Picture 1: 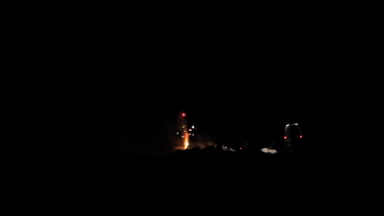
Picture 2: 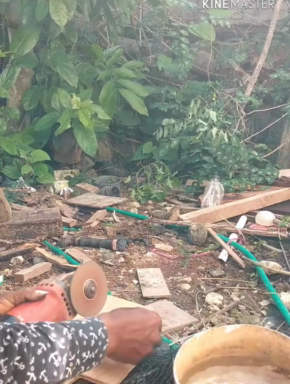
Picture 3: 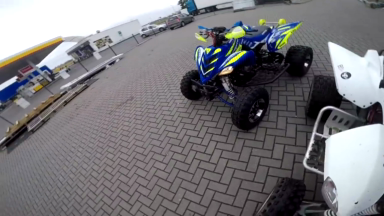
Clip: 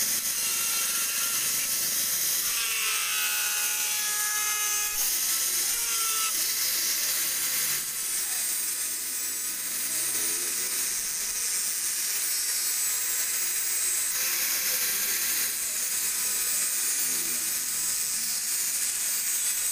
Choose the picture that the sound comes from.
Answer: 2